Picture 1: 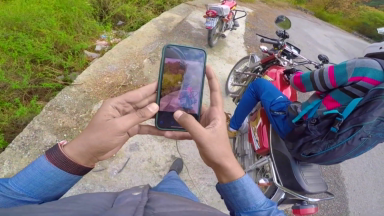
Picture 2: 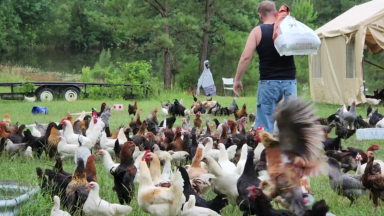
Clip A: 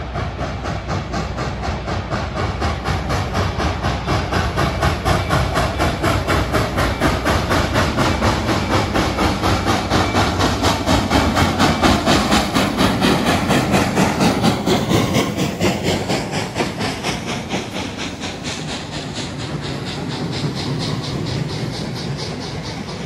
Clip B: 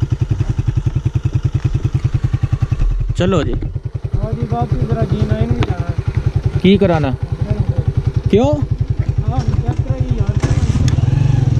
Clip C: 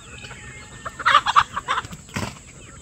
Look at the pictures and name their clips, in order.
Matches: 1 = B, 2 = C